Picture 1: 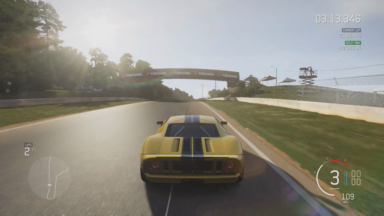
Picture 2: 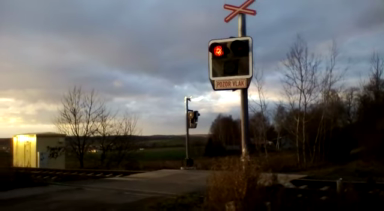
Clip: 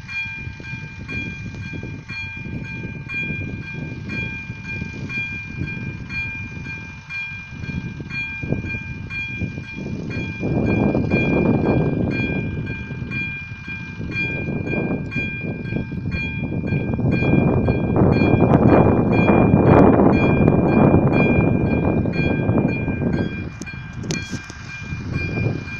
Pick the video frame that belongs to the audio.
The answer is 2